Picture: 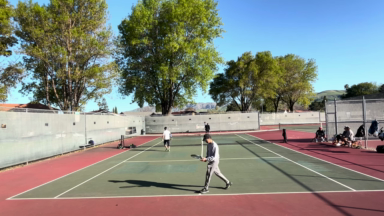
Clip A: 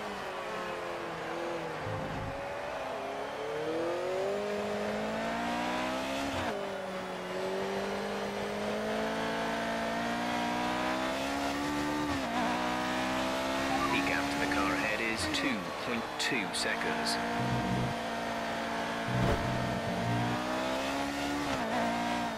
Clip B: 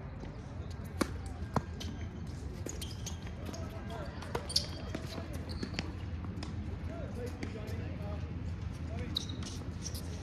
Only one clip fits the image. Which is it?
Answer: B